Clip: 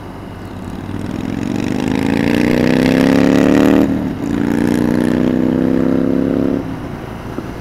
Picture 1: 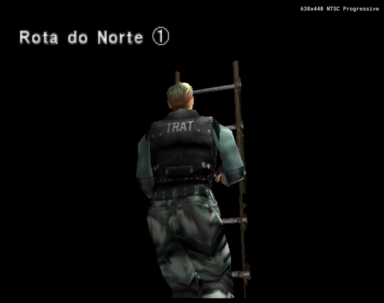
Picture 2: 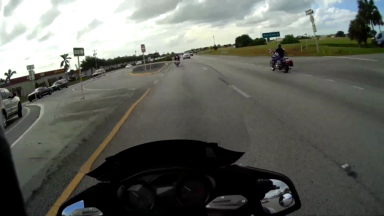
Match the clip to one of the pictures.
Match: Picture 2